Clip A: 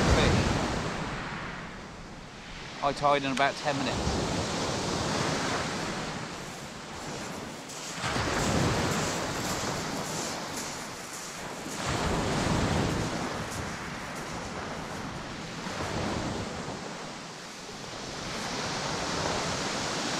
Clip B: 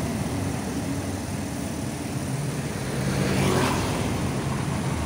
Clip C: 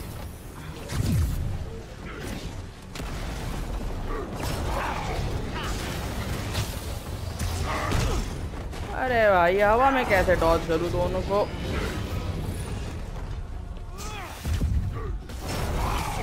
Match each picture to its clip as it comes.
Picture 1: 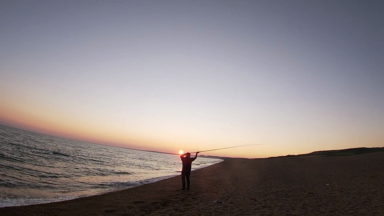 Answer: A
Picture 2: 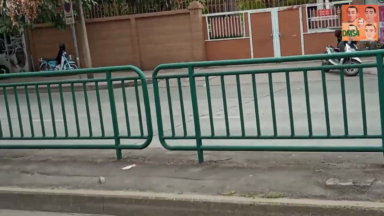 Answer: B